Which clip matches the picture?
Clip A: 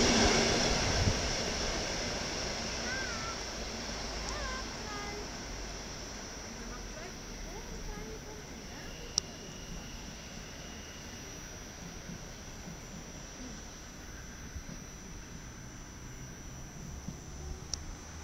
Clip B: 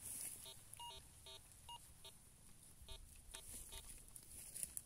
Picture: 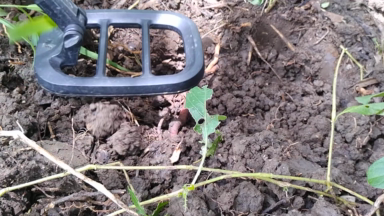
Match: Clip B